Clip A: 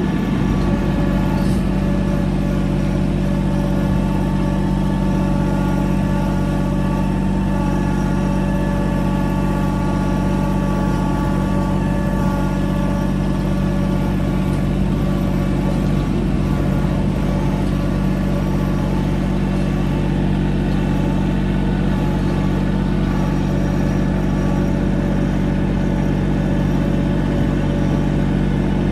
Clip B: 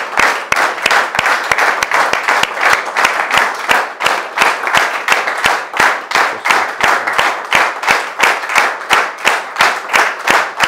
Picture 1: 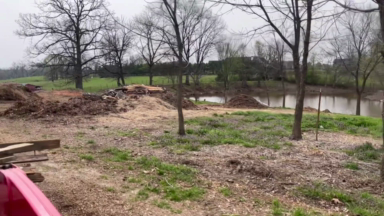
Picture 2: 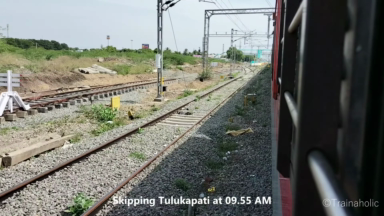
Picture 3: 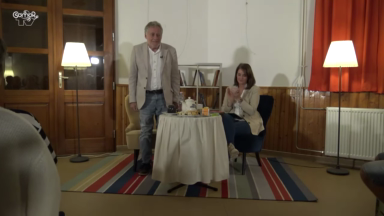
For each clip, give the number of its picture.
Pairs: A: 1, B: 3